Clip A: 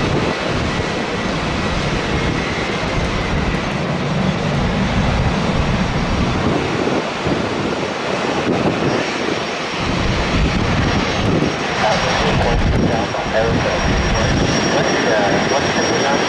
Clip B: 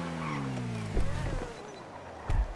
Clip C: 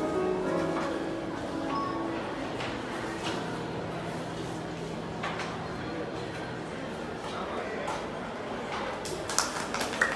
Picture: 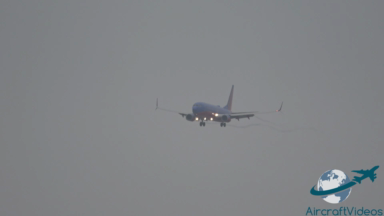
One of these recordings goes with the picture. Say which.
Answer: A